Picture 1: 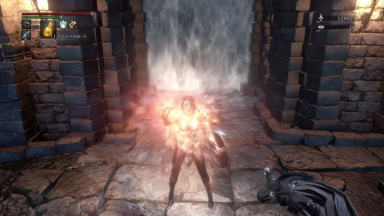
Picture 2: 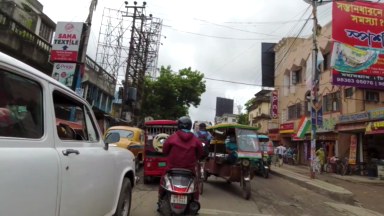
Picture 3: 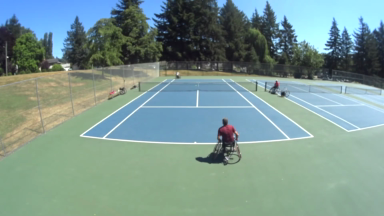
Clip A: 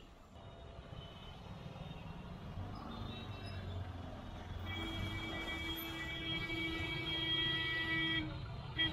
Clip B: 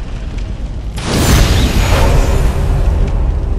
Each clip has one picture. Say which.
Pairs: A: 2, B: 1